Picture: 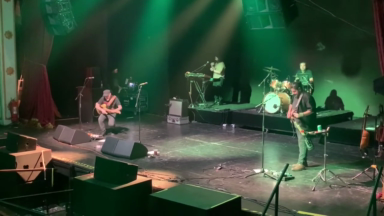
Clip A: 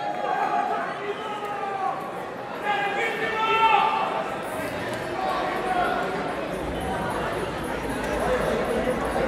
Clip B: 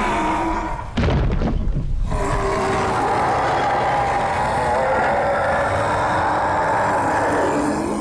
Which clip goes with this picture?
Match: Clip A